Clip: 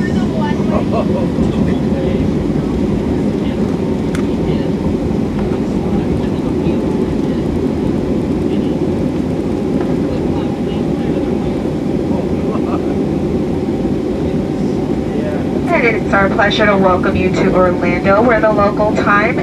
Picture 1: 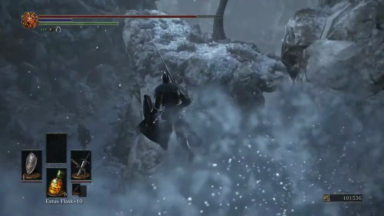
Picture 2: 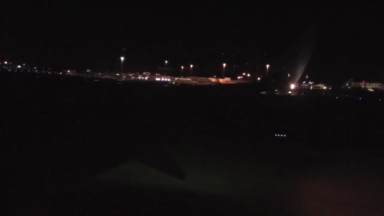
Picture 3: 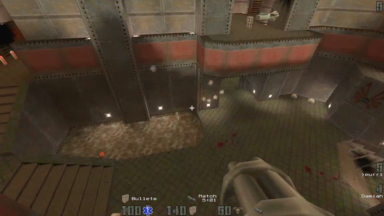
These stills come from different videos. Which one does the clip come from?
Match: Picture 2